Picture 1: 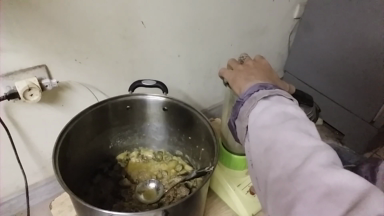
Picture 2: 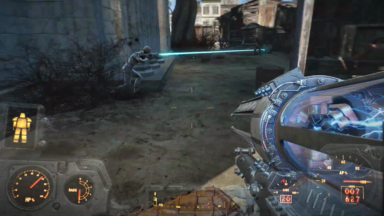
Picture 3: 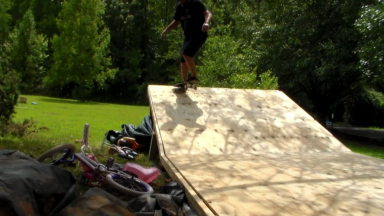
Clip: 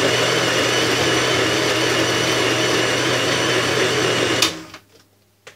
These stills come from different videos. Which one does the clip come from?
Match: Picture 1